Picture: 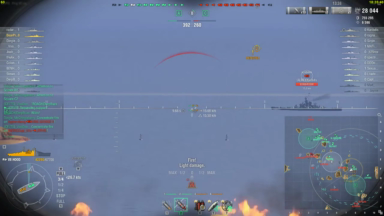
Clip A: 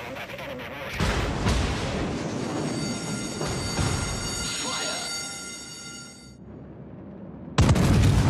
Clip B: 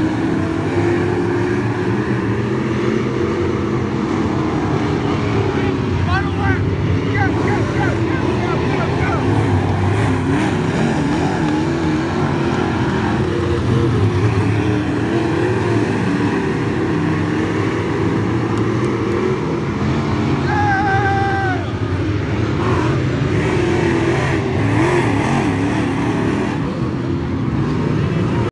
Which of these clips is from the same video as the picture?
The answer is A